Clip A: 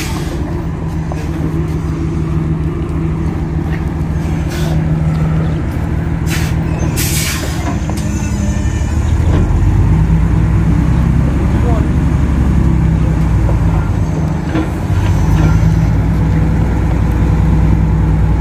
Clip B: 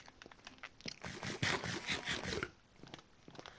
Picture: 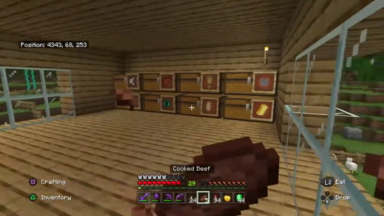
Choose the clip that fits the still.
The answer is B